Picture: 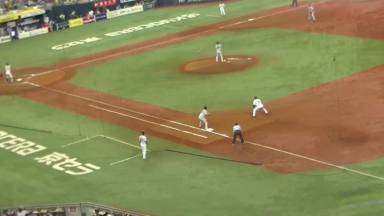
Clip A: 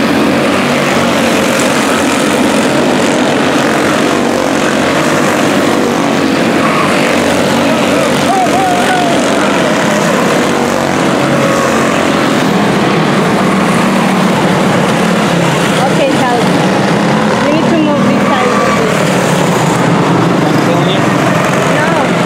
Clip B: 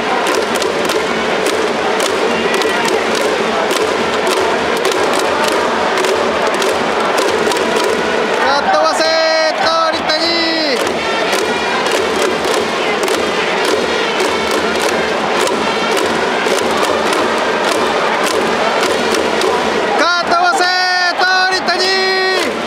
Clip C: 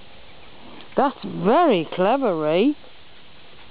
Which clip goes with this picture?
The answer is B